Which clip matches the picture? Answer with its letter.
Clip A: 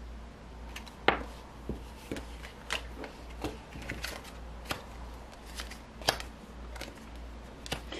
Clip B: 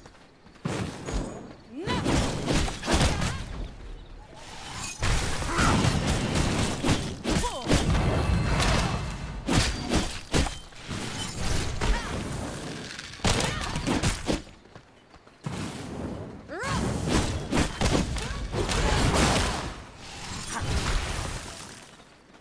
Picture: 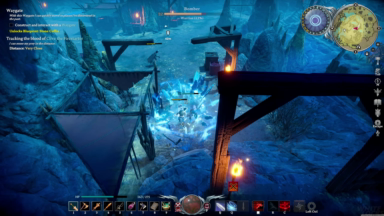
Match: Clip B